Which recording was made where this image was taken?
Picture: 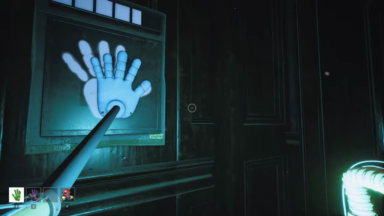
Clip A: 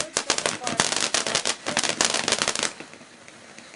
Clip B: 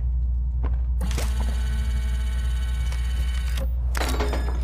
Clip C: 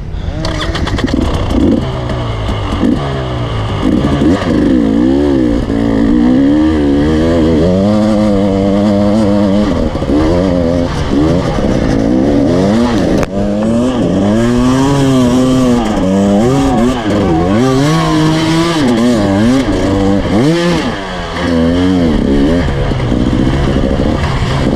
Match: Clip B